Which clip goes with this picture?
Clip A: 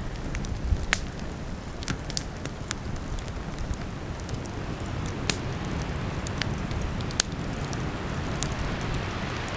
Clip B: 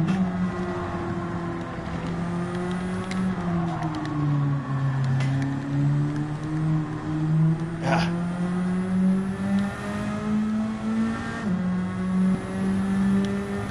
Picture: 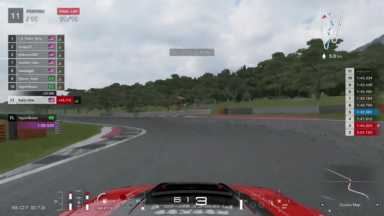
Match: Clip B